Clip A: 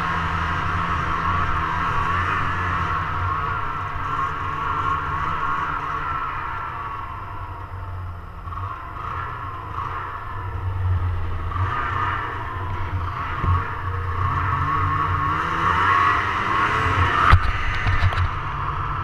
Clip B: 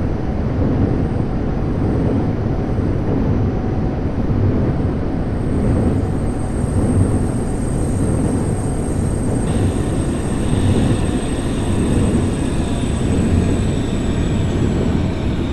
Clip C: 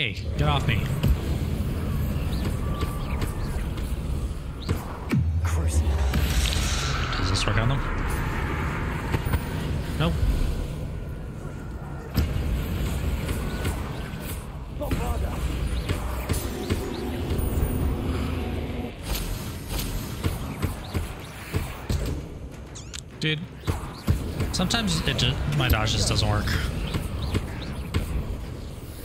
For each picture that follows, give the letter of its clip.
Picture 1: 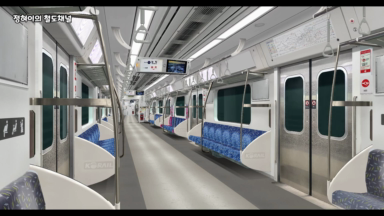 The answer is B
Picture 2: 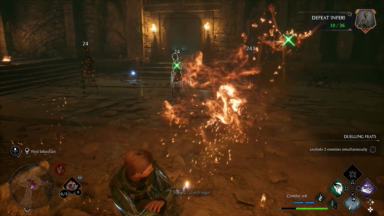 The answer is C